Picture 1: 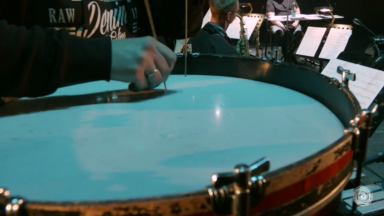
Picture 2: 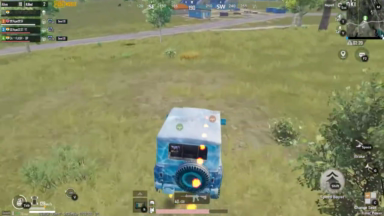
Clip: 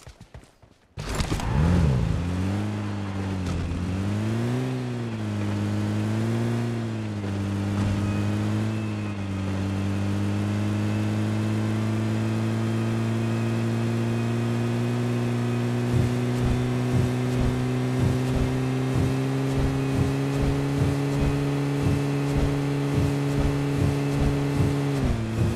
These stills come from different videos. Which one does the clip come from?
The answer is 2